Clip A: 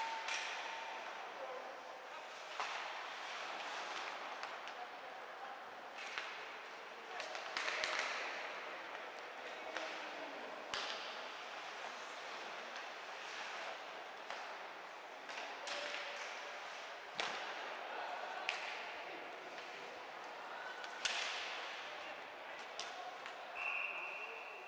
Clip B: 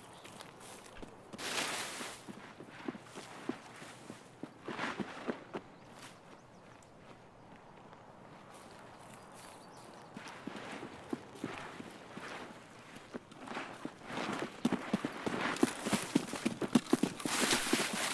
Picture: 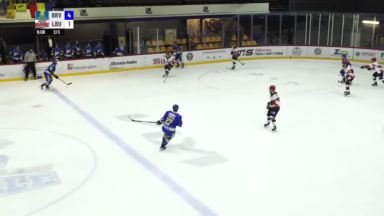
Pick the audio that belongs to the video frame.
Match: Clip A